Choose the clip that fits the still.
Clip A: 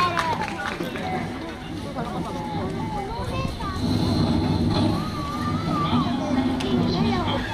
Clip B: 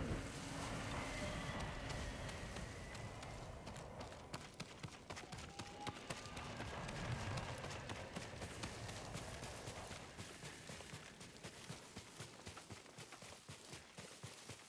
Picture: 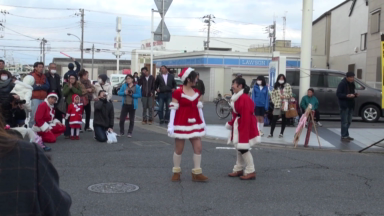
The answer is A